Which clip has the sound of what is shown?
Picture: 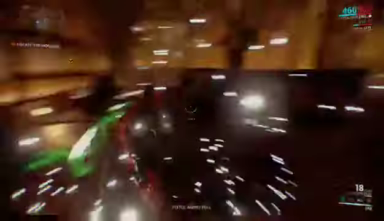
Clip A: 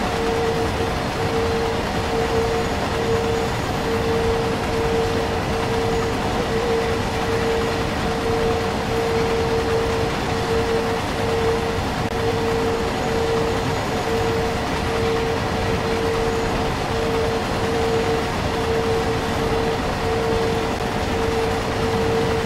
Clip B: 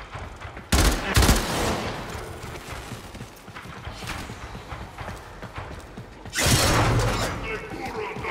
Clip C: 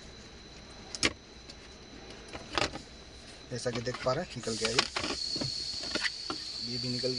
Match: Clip B